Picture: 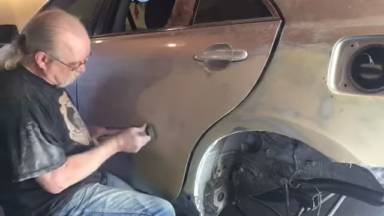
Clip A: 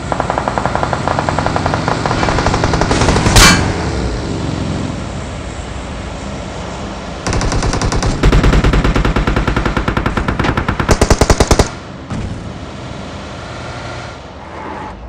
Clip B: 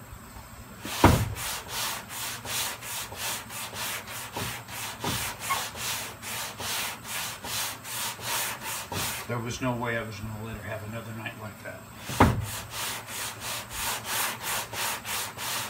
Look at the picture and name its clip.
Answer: B